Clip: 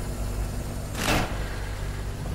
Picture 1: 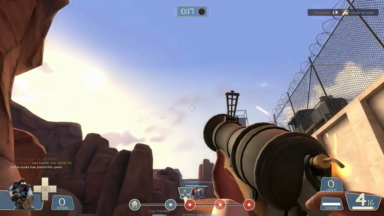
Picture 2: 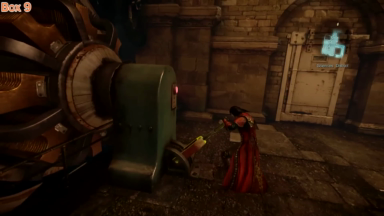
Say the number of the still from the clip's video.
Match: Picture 2